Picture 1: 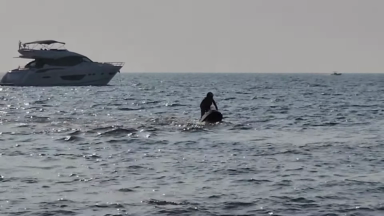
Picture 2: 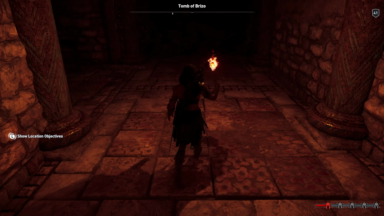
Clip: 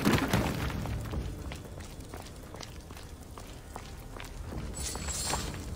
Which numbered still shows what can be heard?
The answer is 2